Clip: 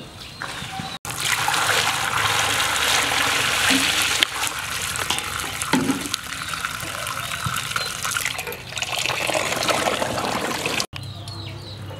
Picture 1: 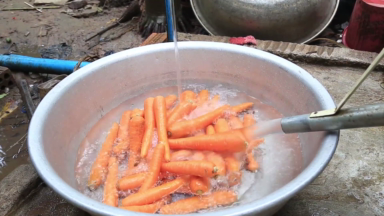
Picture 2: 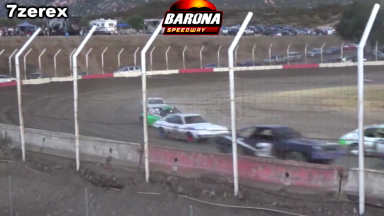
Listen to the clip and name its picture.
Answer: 1